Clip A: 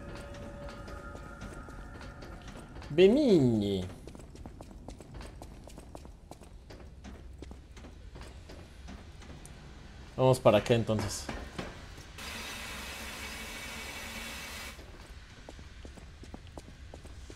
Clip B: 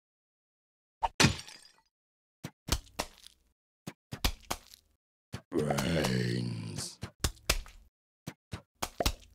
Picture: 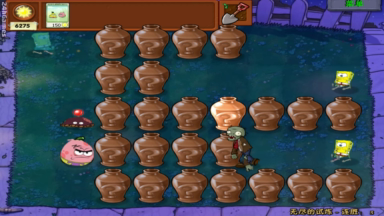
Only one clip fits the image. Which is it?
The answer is B